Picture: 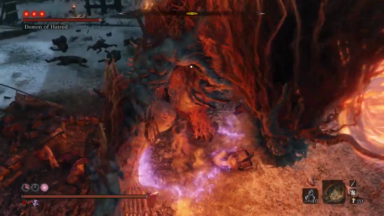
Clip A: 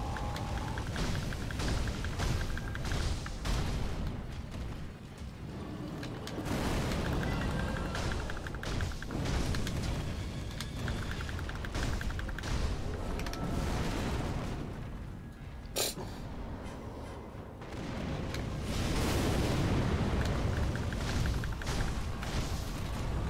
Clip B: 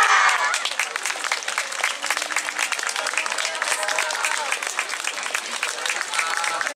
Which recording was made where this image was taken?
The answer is A